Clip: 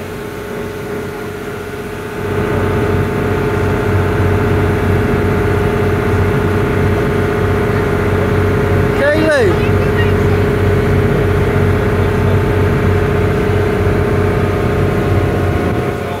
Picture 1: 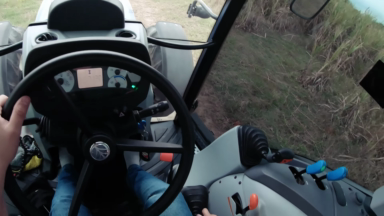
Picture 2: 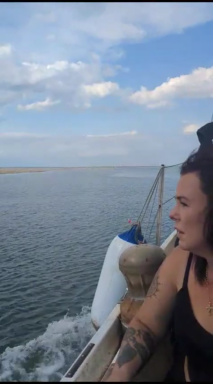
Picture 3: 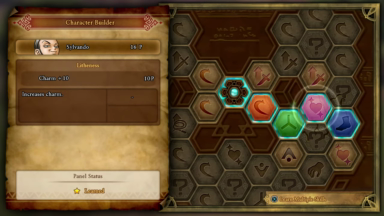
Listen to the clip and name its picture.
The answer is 2